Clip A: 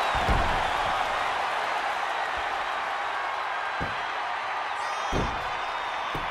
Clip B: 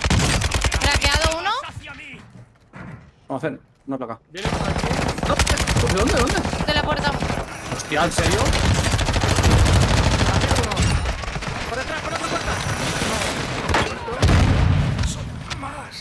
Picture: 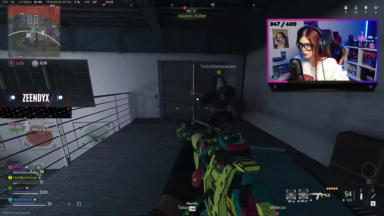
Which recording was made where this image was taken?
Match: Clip B